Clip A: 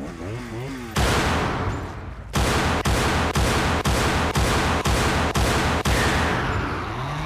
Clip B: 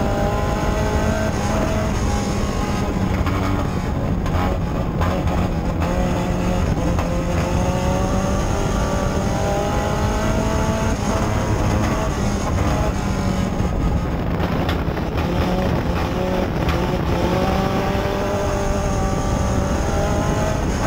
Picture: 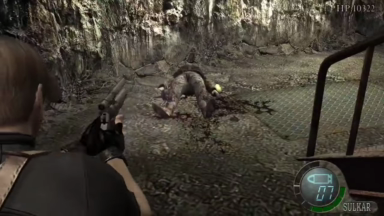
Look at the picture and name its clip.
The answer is A